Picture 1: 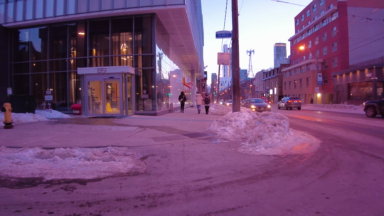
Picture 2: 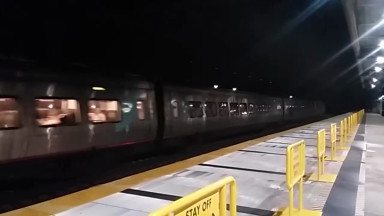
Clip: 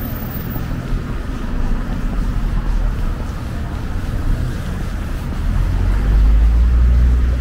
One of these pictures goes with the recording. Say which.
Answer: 1